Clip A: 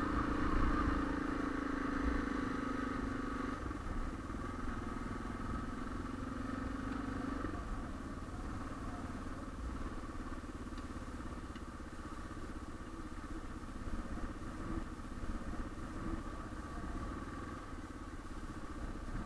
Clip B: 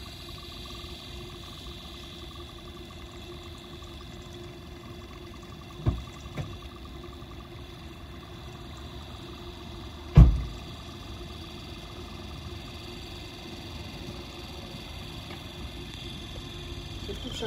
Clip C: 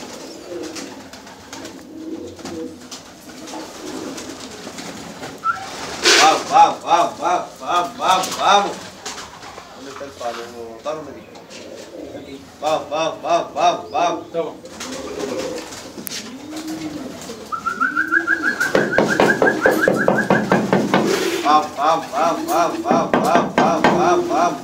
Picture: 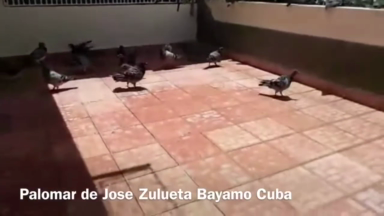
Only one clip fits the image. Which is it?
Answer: C